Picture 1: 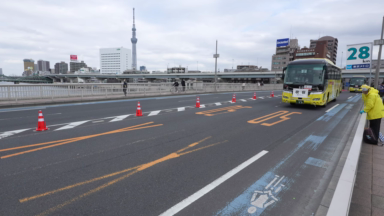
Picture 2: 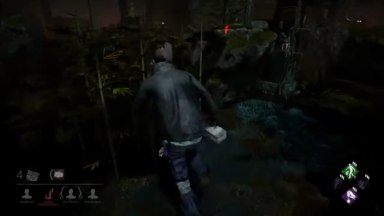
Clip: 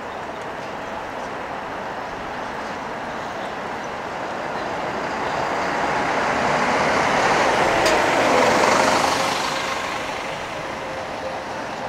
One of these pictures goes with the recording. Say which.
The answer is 1